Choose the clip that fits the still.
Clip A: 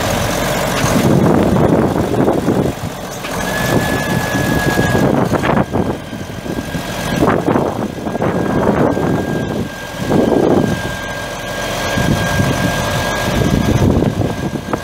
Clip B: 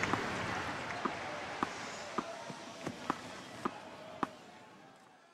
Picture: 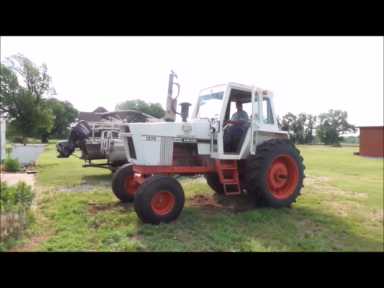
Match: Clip A